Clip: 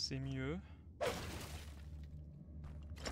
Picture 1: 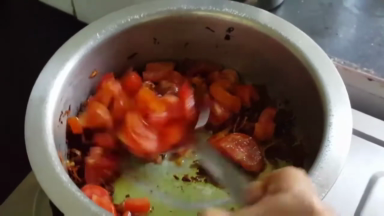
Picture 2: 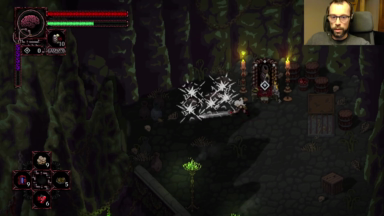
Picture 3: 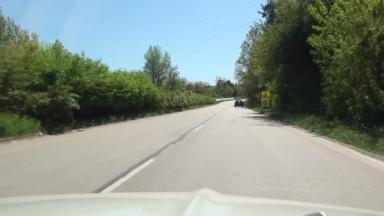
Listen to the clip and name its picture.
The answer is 2